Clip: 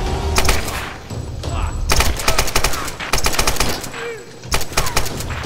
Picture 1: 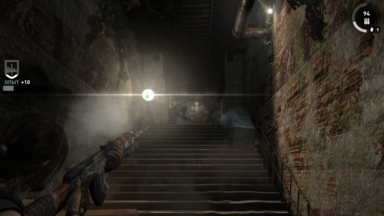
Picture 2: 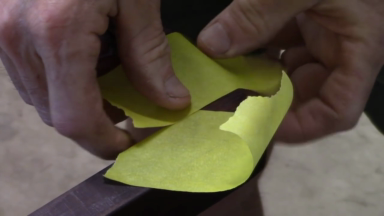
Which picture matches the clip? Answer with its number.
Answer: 1